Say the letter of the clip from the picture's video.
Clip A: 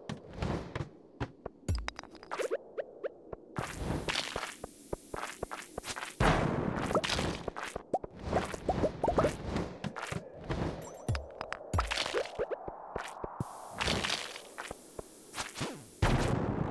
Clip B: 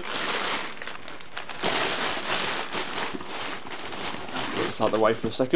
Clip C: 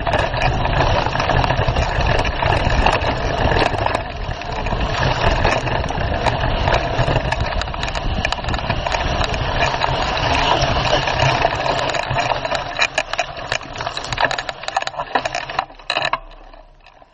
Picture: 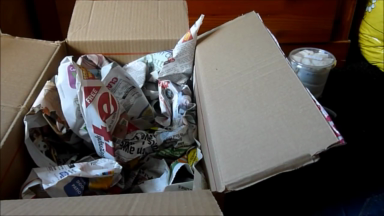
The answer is B